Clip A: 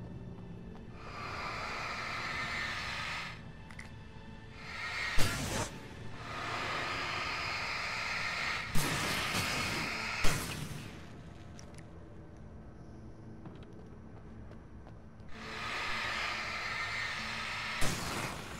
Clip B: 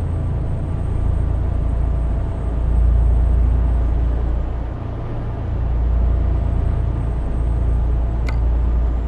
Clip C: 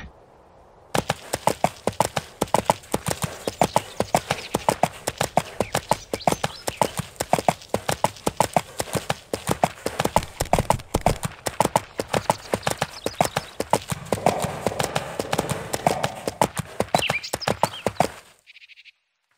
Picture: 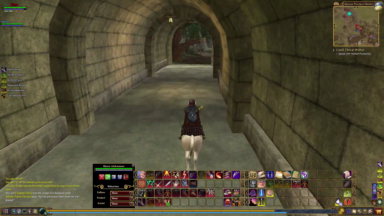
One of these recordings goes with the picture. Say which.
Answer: C